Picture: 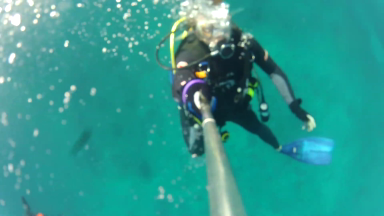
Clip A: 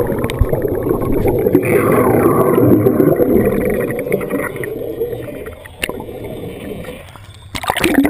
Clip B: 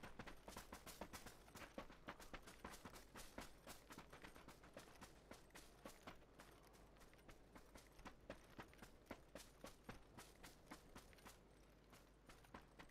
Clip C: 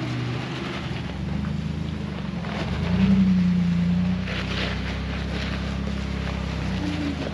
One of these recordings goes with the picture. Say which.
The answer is A